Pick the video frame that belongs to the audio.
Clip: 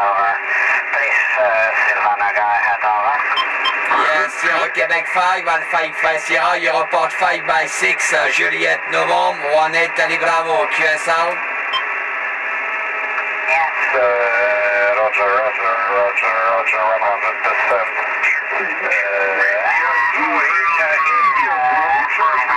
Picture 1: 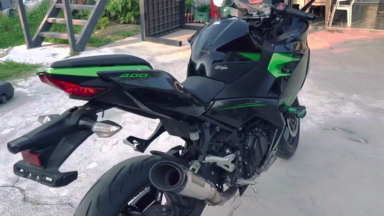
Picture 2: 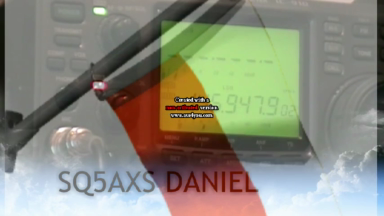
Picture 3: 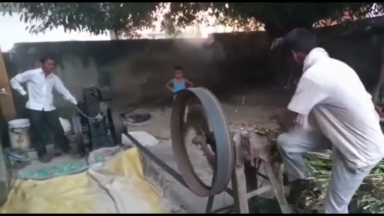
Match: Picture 2